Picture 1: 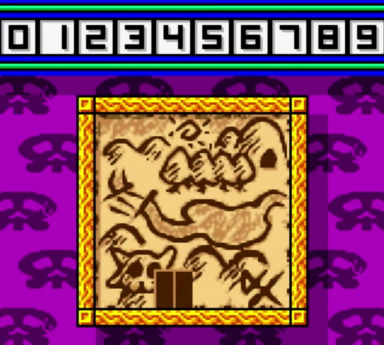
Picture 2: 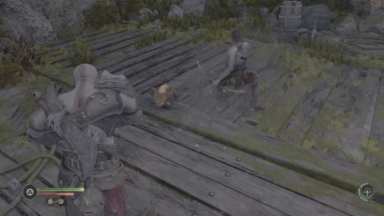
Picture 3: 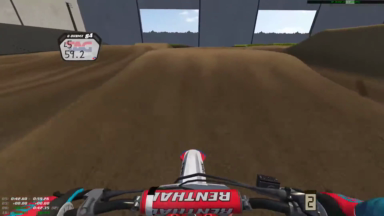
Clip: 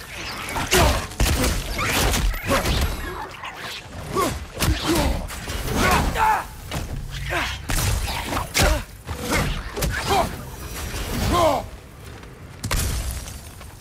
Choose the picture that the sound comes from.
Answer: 2